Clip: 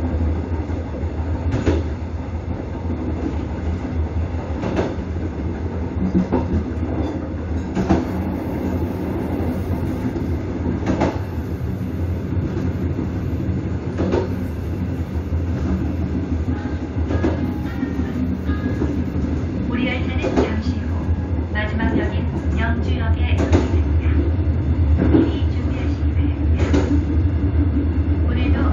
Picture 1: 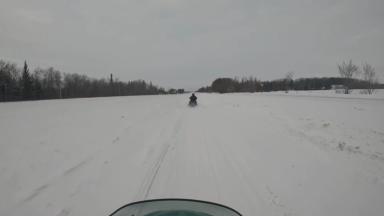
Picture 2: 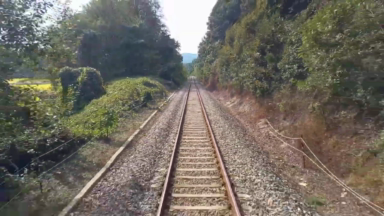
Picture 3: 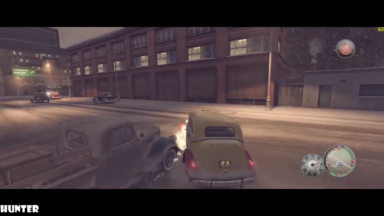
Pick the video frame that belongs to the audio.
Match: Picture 2